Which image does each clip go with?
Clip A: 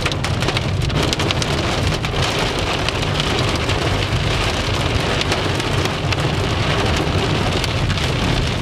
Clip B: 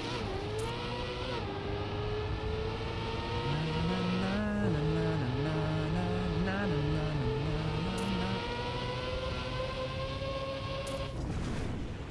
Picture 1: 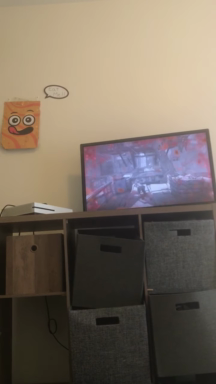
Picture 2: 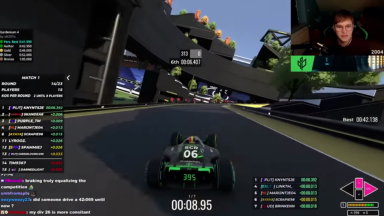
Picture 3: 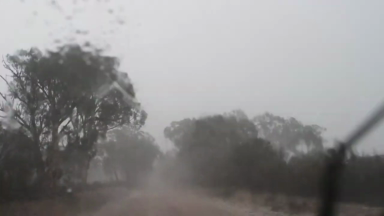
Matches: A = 3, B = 2